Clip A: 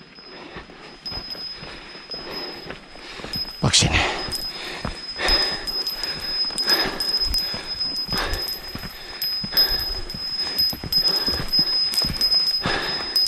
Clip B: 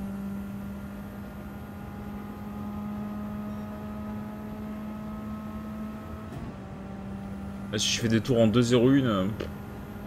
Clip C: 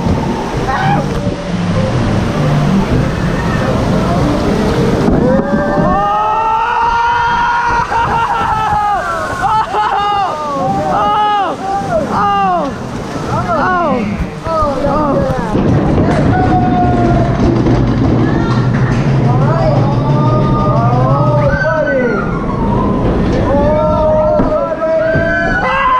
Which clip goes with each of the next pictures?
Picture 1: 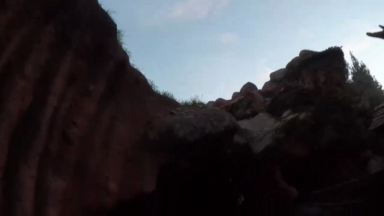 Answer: C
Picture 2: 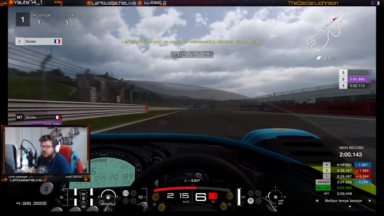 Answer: B